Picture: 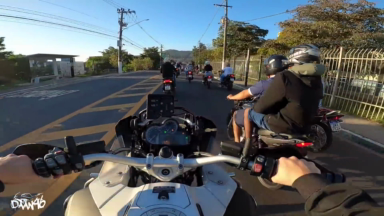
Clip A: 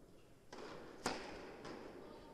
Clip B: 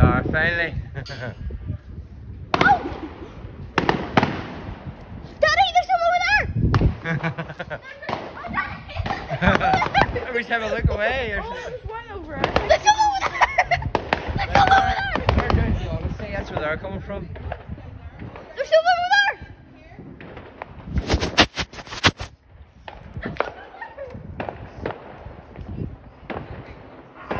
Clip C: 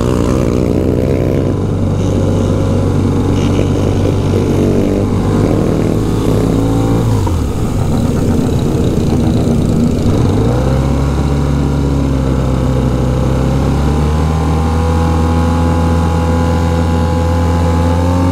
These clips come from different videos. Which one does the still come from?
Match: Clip C